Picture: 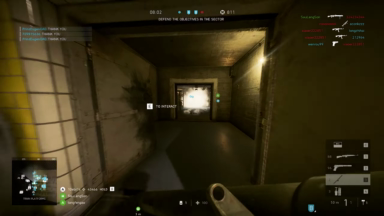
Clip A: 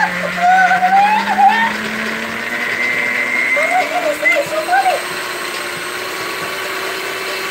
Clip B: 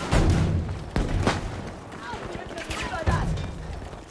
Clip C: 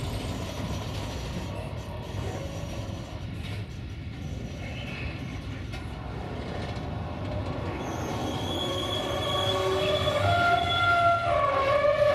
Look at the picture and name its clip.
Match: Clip B